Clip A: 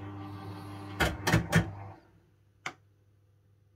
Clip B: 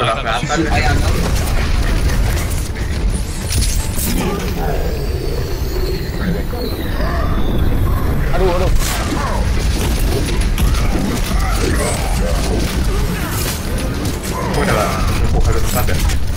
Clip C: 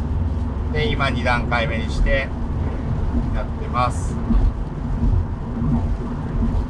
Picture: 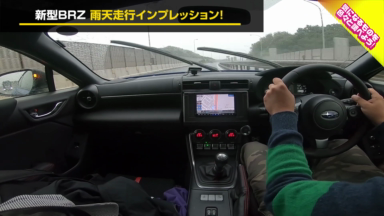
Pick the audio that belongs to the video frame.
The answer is C